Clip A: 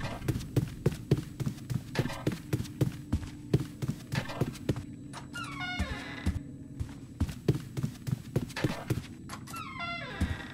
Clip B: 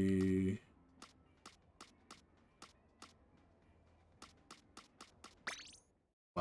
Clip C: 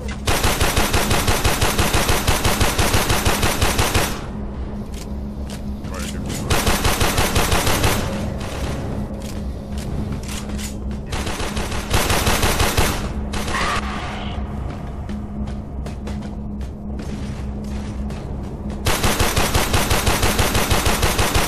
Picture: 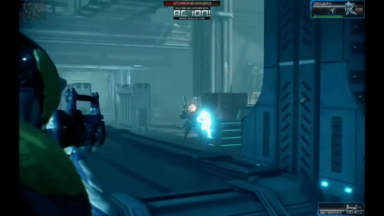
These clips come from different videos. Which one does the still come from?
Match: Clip C